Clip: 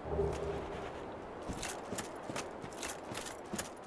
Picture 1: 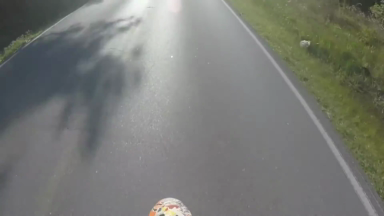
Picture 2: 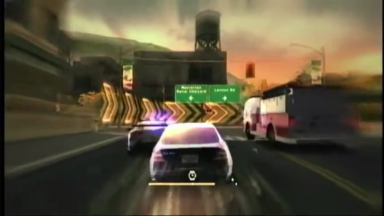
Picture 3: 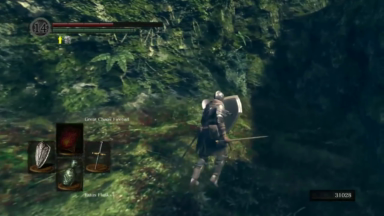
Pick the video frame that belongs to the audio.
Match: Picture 3